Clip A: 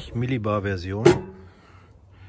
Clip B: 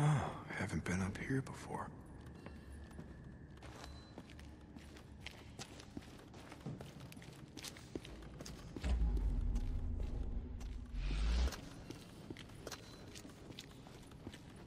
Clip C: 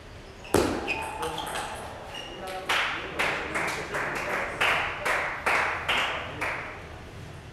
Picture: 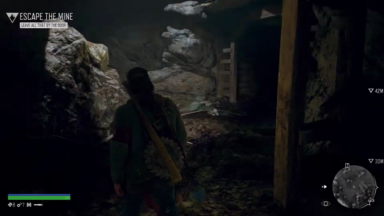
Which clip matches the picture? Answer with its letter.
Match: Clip B